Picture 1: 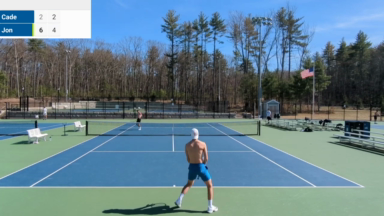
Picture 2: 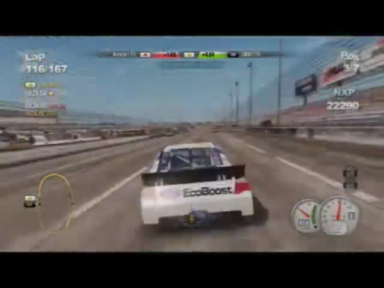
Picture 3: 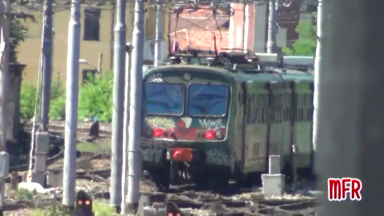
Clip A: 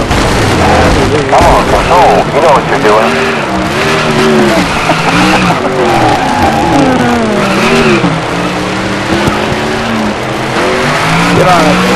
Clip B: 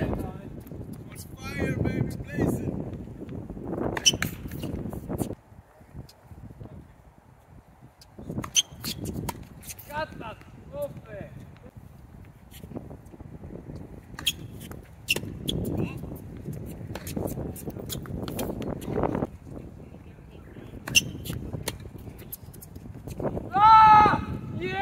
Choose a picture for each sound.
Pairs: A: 2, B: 1